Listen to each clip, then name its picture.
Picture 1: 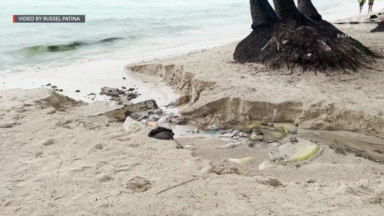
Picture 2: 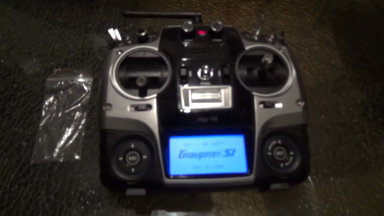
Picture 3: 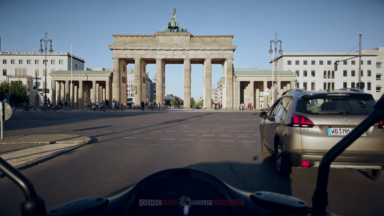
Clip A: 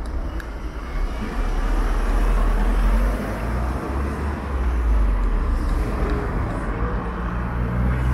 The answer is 3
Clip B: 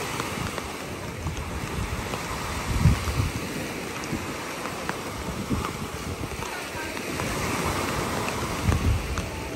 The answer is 1